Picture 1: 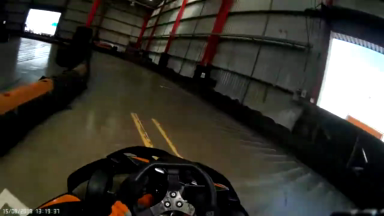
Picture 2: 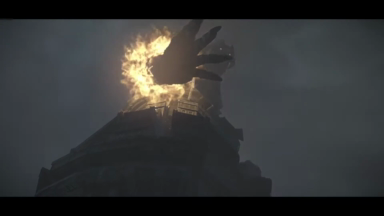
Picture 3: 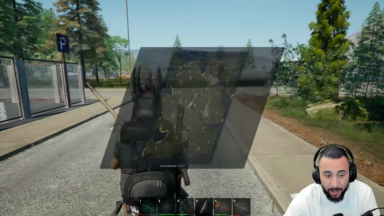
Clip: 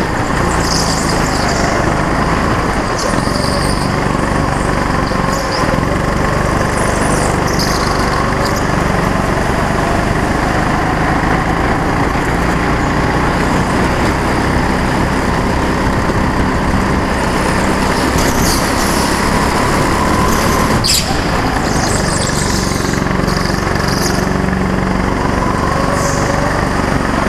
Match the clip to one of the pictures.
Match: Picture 1